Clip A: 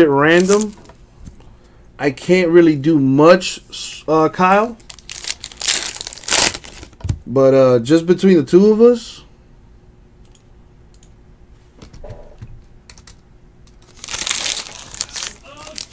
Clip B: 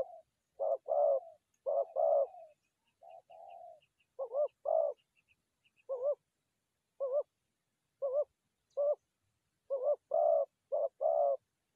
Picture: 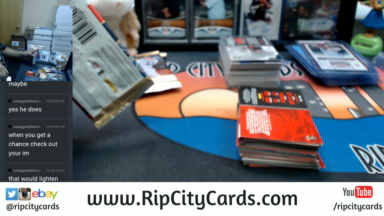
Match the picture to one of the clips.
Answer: A